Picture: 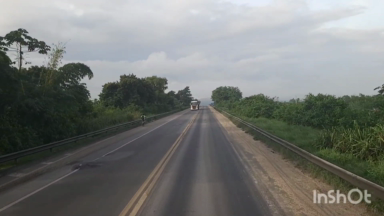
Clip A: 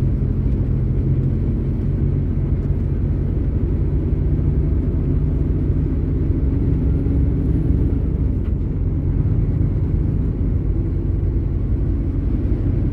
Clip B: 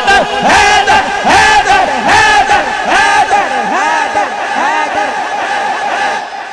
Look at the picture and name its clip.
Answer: A